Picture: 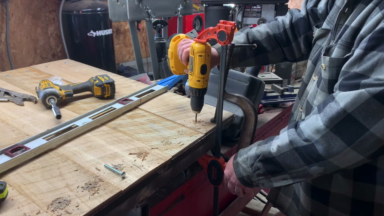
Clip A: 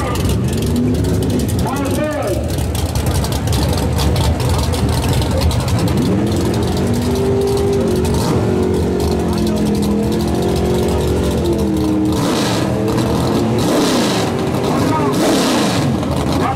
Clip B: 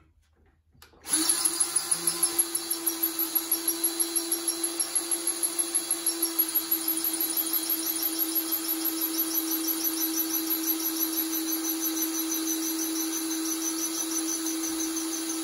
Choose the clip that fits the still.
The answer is B